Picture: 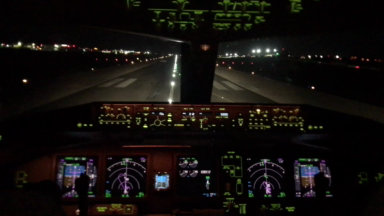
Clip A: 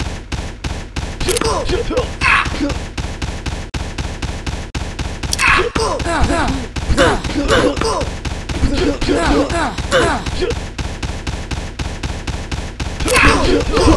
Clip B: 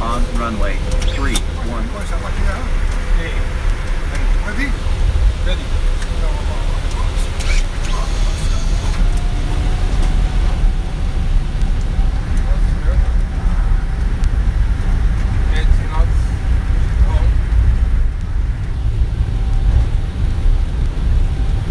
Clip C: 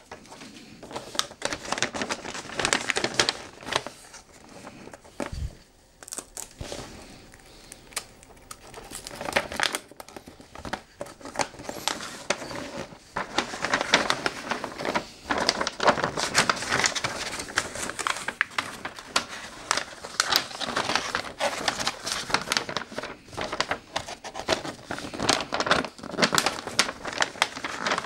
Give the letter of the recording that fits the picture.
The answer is B